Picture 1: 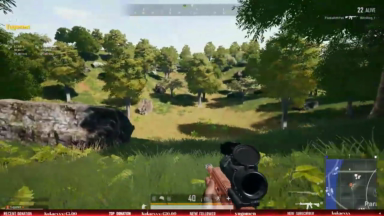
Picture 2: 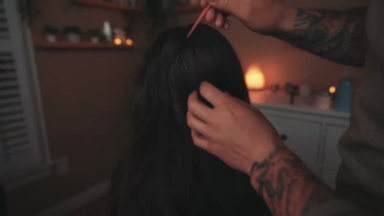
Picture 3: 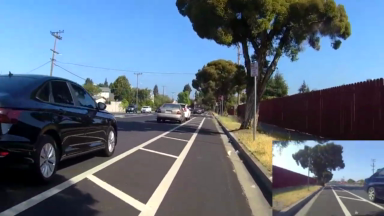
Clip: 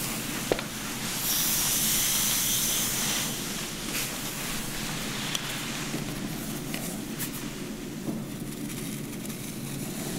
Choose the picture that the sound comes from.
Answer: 2